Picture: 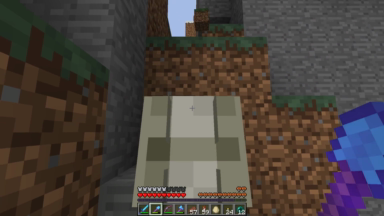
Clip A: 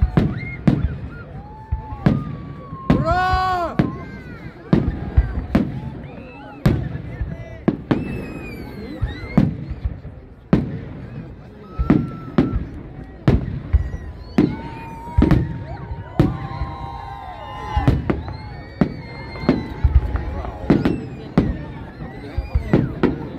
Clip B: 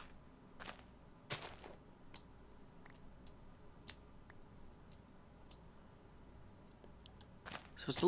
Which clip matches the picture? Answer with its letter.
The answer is B